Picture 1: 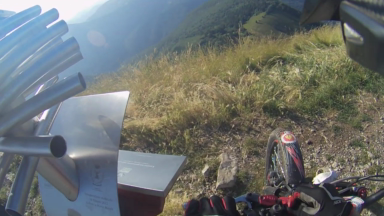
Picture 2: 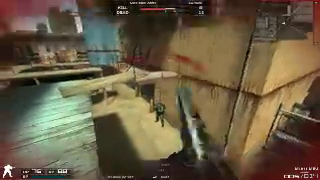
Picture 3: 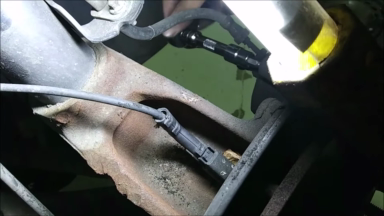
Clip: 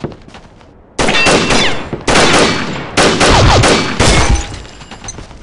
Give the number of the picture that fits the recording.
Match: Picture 2